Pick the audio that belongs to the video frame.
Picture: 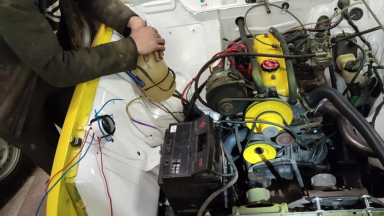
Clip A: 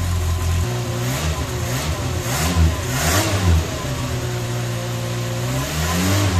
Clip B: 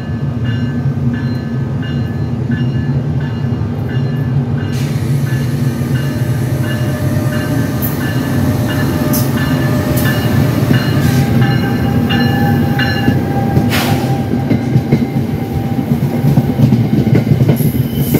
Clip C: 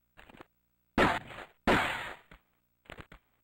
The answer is A